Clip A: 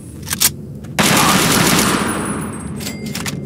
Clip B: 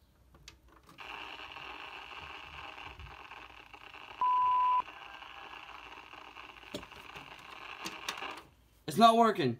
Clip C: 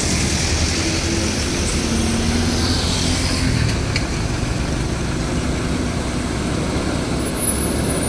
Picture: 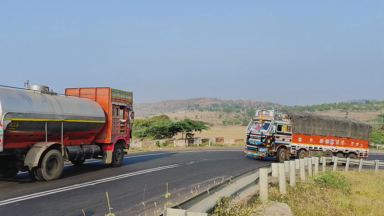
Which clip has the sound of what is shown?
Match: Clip C